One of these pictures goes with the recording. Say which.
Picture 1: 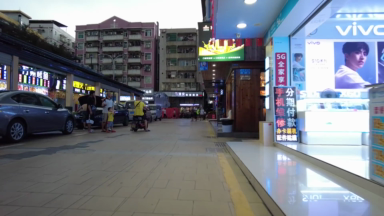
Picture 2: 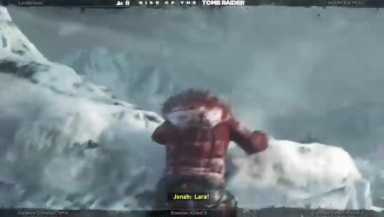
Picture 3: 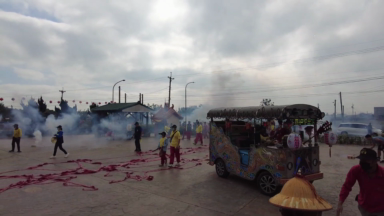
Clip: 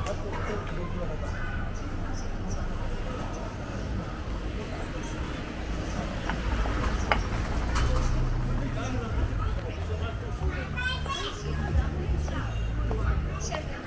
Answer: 1